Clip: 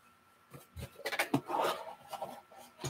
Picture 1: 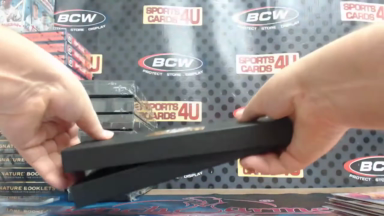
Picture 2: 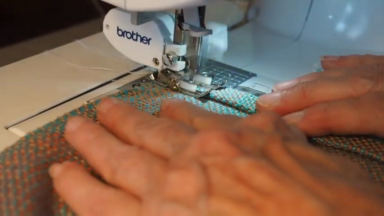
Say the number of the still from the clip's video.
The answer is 1